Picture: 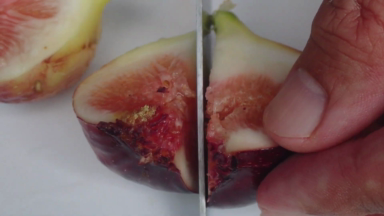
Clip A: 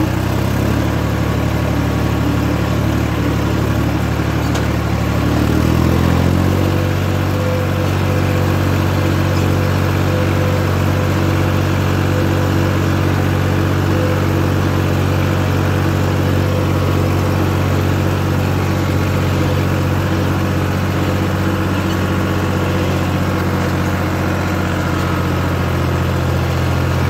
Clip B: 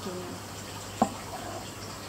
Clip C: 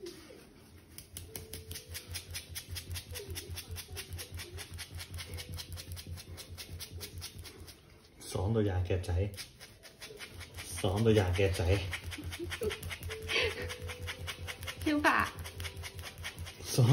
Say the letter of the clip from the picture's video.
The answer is B